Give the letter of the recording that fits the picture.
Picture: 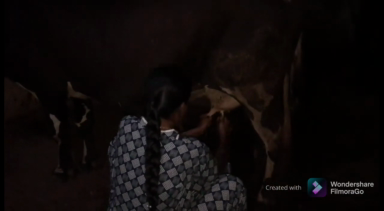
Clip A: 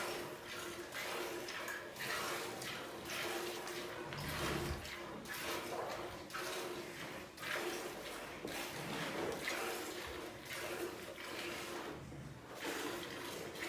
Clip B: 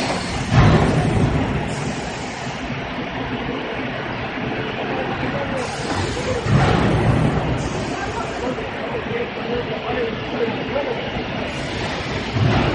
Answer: A